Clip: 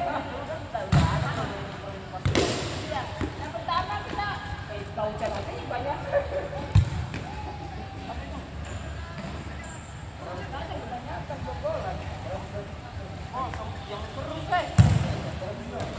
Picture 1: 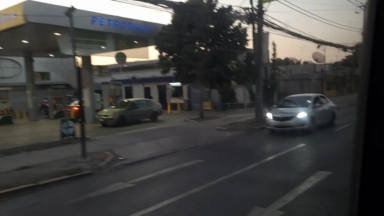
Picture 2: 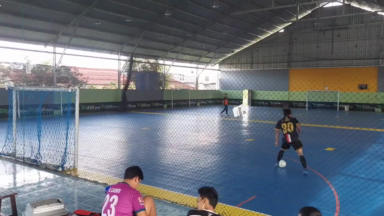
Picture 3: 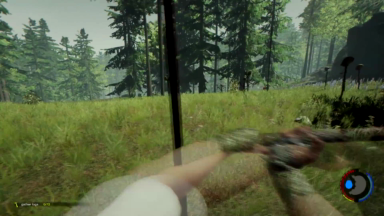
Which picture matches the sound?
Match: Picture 2